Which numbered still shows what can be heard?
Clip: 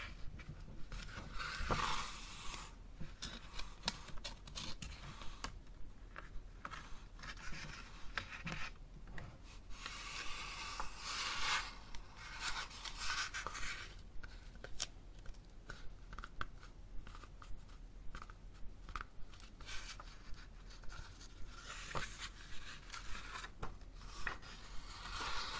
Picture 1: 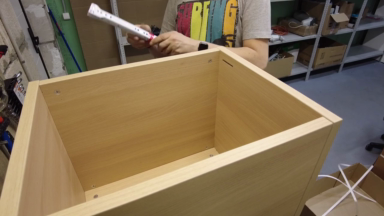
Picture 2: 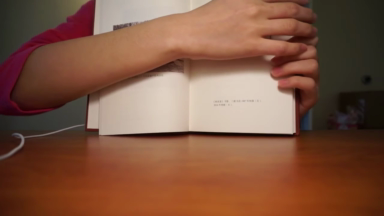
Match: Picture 2